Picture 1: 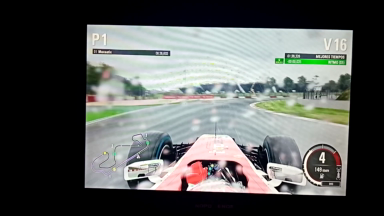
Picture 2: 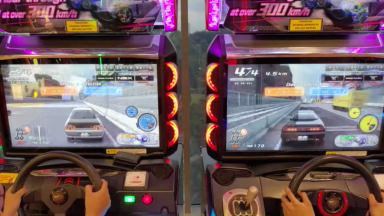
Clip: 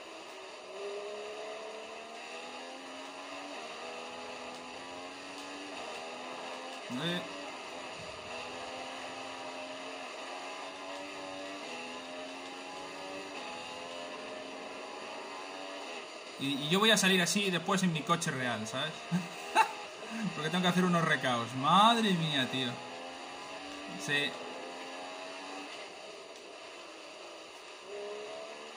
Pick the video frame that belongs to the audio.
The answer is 1